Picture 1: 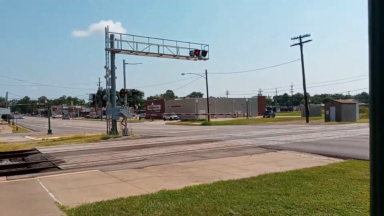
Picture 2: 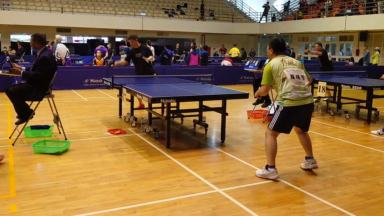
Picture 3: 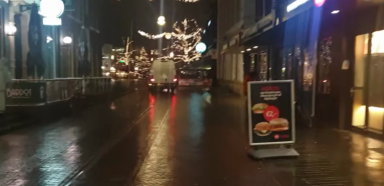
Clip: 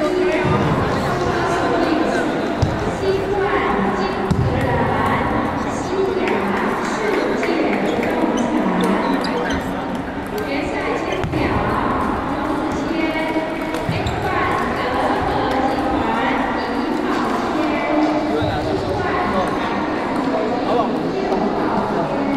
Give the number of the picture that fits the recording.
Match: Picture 2